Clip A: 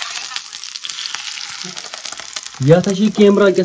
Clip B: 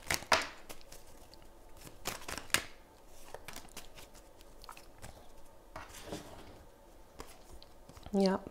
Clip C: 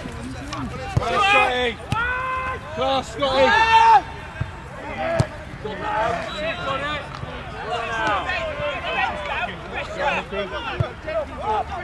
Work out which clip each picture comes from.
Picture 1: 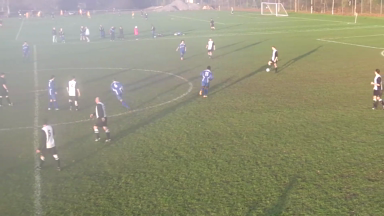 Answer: C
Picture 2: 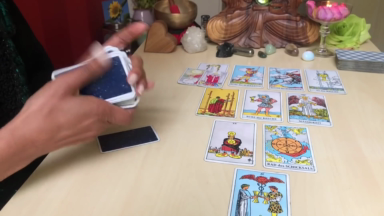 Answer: B